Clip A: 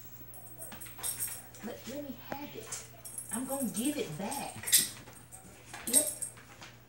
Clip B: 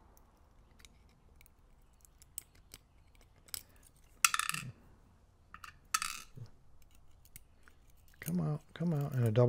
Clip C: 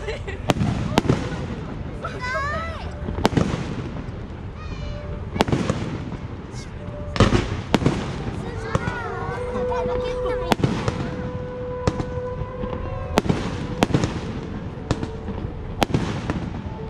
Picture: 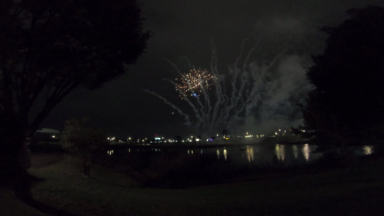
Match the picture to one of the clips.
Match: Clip C